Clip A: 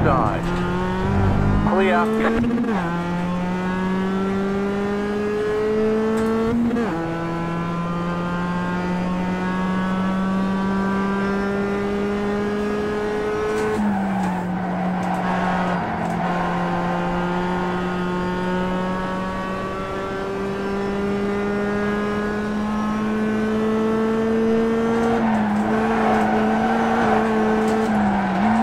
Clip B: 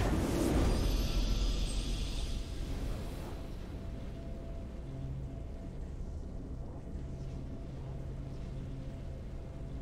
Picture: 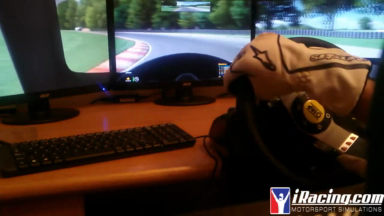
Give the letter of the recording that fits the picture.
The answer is A